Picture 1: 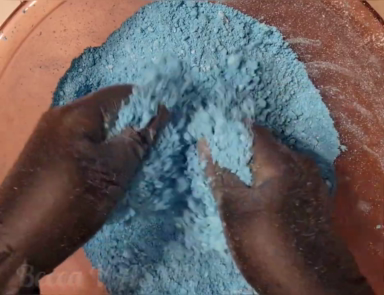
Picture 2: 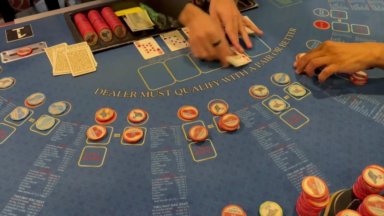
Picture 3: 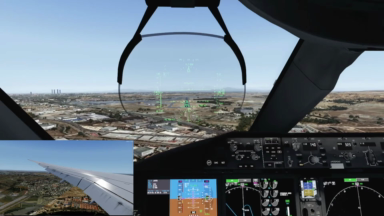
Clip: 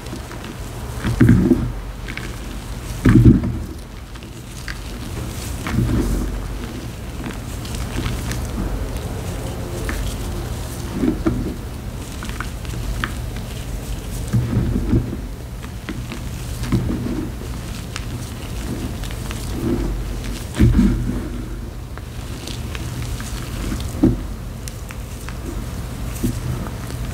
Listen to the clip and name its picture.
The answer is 1